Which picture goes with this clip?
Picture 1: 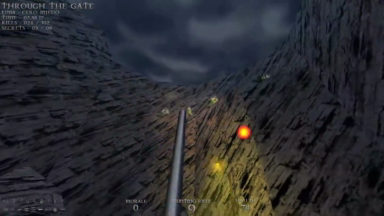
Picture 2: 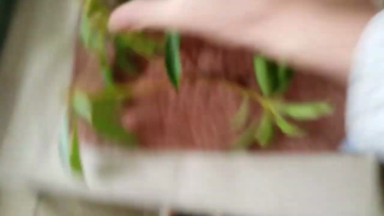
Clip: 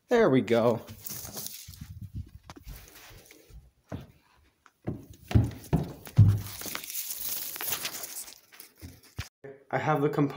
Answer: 2